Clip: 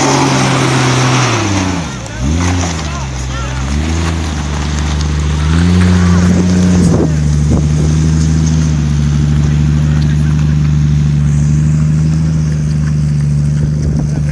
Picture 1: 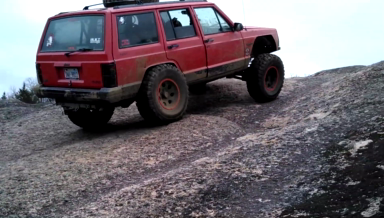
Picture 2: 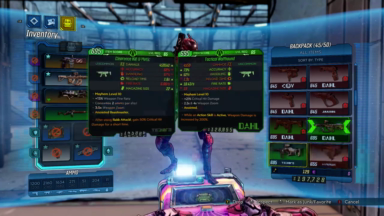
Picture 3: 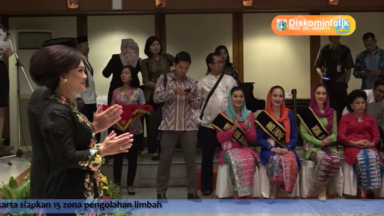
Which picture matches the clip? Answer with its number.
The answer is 1